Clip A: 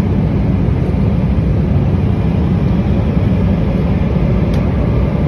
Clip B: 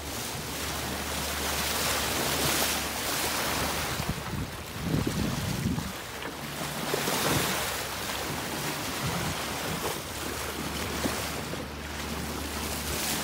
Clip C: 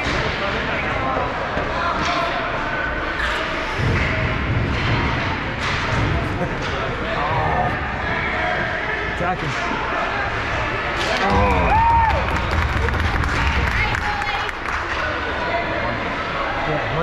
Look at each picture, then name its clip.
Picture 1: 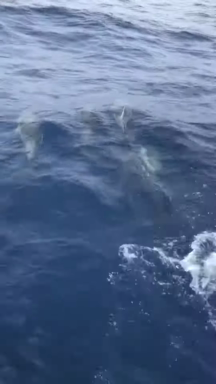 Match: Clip B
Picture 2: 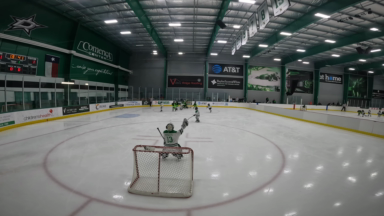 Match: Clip C